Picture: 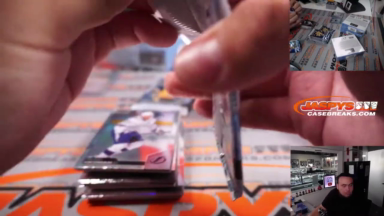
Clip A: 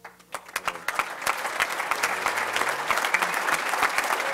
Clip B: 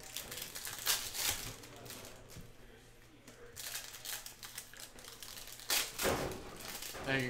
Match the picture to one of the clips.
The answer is B